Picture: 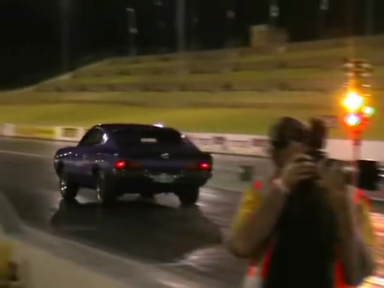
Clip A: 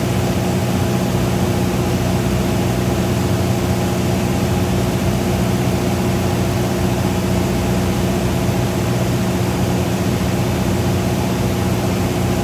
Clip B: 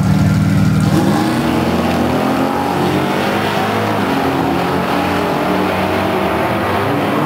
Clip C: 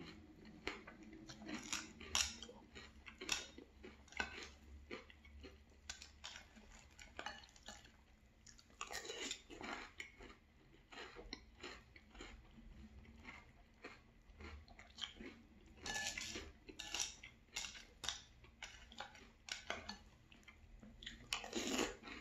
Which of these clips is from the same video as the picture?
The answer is B